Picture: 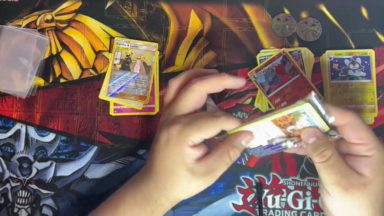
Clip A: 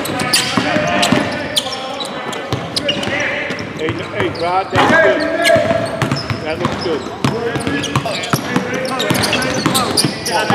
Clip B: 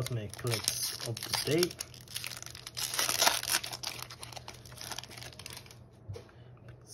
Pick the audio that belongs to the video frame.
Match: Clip B